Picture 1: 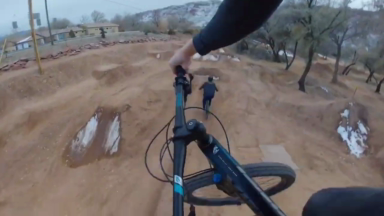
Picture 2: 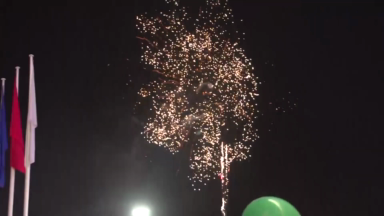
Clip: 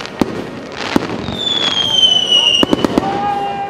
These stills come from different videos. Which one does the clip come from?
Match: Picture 2